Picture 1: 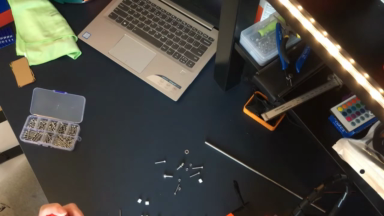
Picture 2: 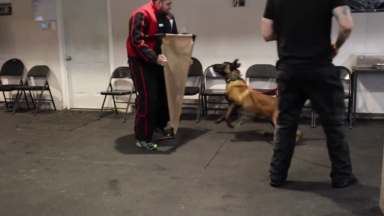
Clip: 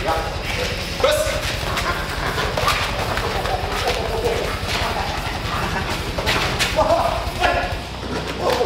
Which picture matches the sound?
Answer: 2